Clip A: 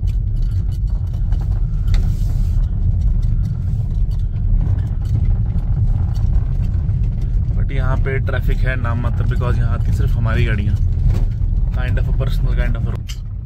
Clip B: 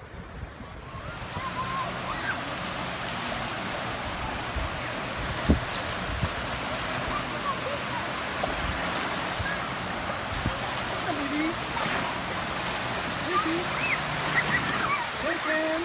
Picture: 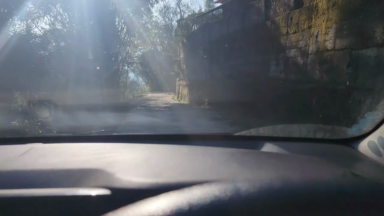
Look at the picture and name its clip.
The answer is A